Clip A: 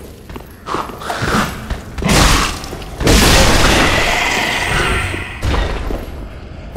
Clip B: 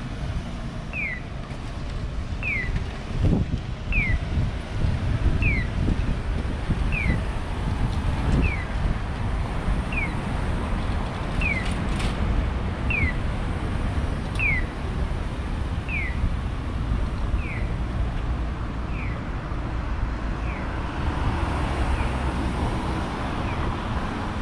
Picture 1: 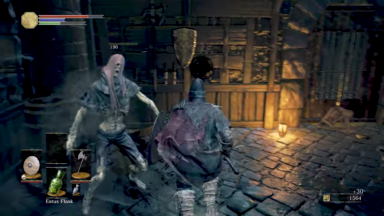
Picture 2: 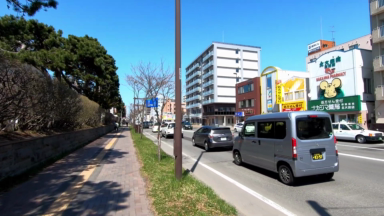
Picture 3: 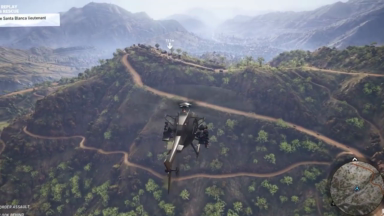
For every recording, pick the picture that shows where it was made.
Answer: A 1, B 2